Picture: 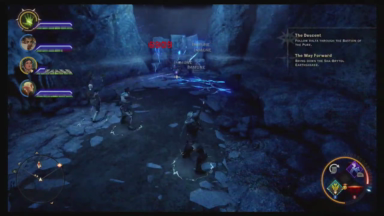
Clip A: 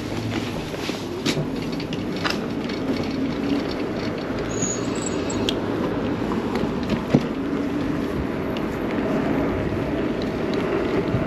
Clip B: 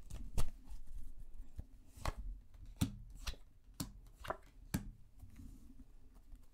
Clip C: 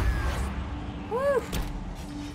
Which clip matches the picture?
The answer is C